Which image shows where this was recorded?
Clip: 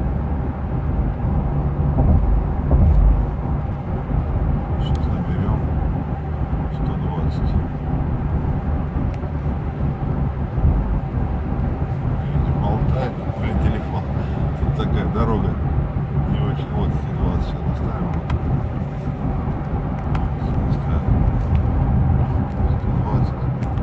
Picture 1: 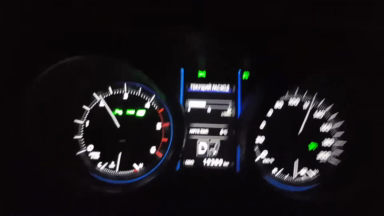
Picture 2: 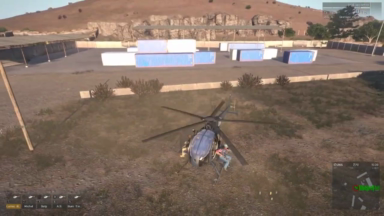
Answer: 1